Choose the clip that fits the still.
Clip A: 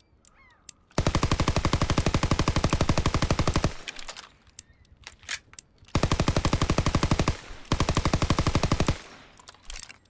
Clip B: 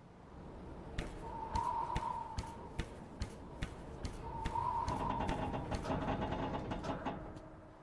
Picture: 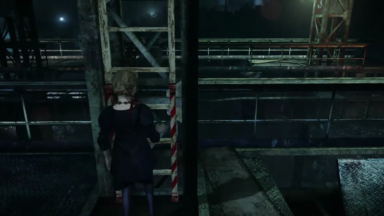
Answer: B